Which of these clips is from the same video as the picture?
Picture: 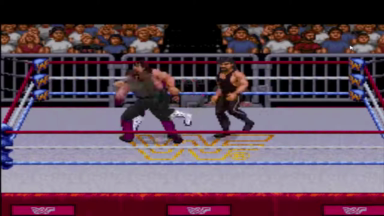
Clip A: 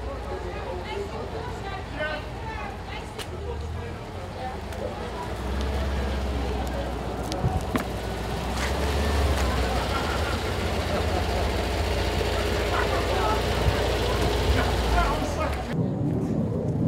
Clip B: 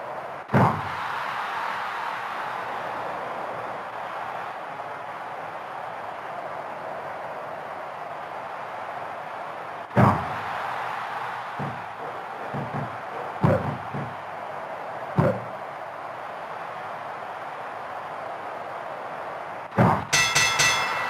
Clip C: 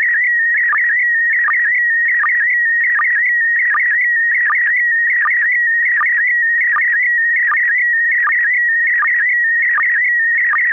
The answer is B